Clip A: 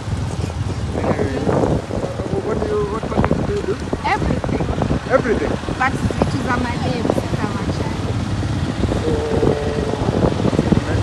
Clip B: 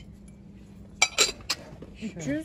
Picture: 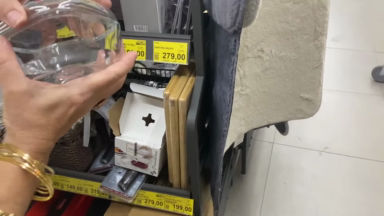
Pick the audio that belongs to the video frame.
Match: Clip B